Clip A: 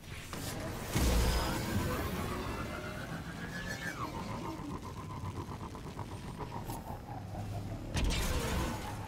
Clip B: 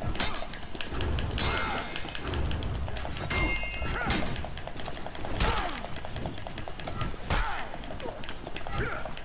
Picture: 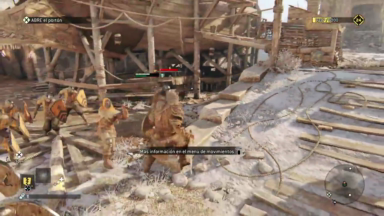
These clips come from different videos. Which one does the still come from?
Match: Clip B